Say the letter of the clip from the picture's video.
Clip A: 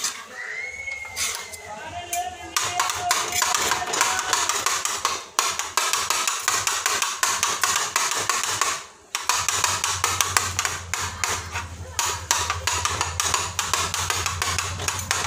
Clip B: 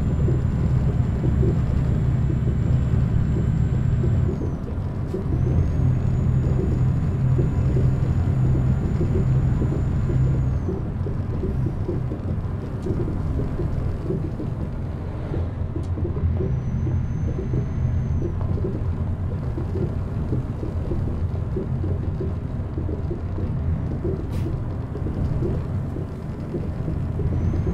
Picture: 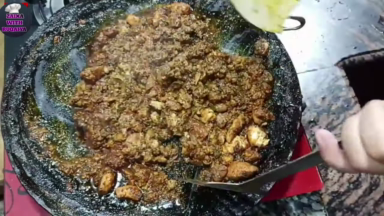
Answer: A